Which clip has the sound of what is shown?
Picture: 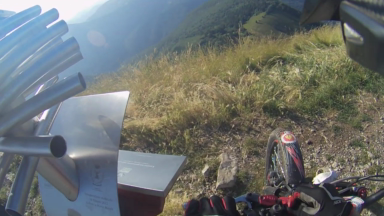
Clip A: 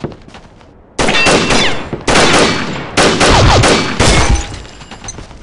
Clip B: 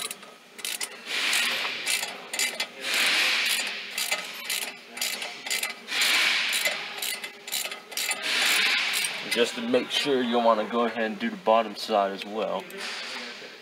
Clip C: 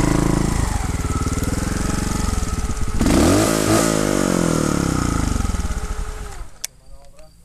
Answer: C